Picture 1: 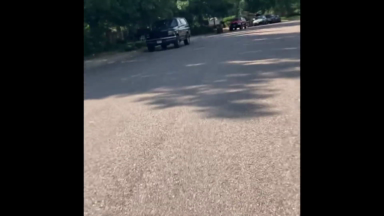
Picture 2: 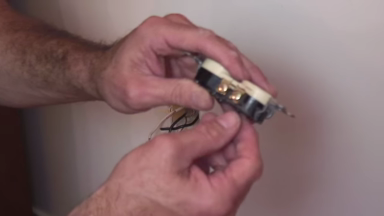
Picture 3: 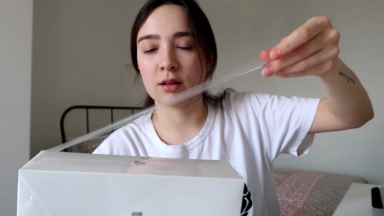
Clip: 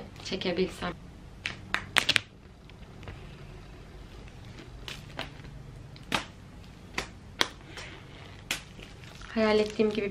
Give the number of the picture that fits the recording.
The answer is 3